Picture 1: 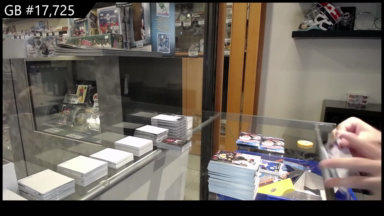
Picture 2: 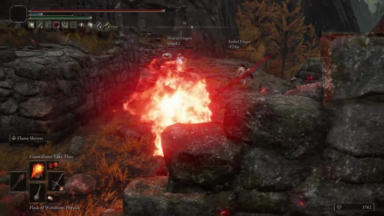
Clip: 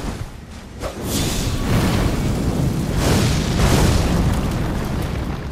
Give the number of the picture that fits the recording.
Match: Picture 2